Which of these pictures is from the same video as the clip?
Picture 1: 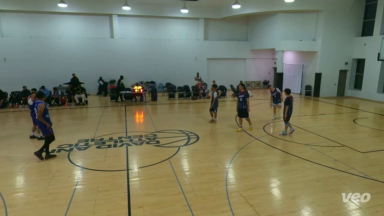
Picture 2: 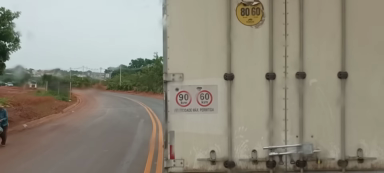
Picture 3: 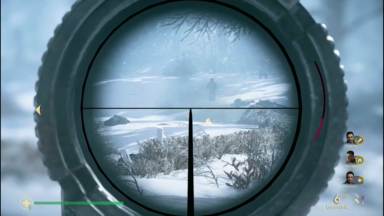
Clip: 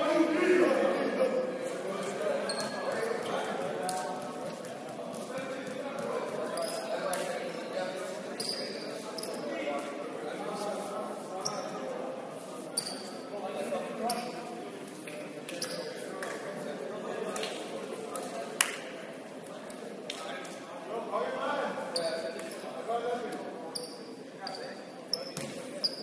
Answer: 1